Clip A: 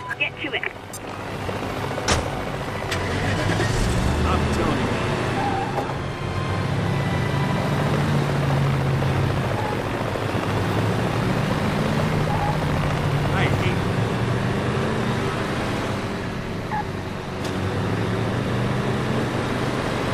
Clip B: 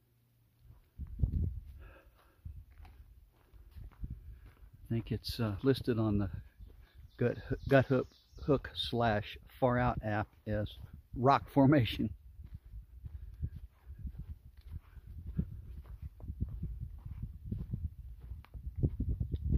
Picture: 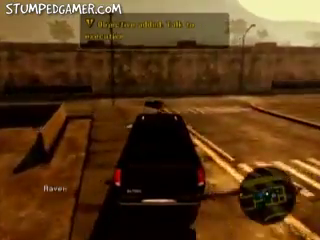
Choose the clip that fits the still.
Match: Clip A